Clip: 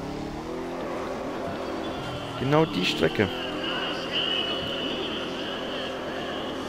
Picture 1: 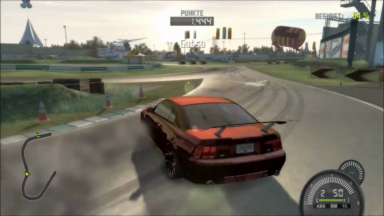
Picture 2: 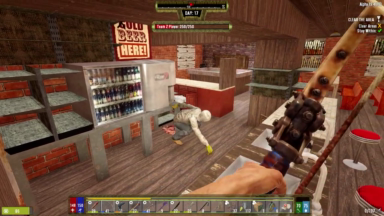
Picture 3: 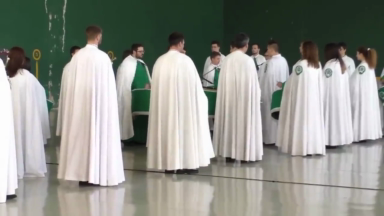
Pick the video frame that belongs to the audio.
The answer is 1